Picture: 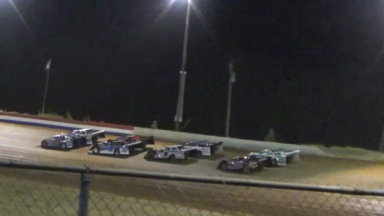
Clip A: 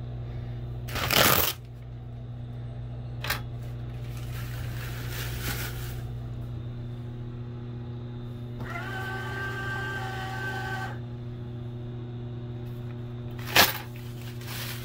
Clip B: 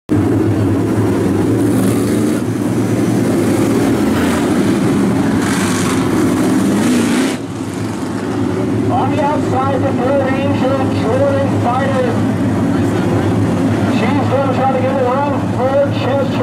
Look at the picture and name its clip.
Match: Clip B